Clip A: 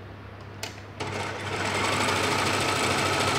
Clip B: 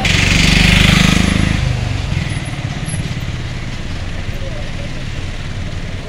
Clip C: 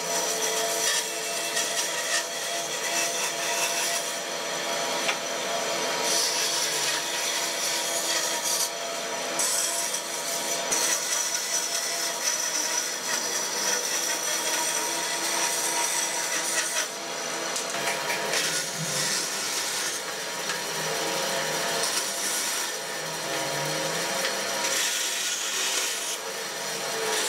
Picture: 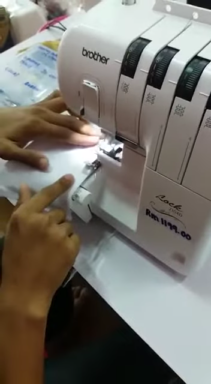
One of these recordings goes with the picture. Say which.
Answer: A